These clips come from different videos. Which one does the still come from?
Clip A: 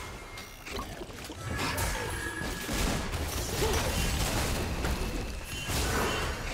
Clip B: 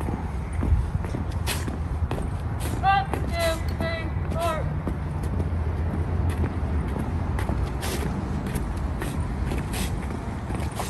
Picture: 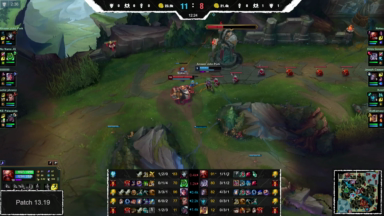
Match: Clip A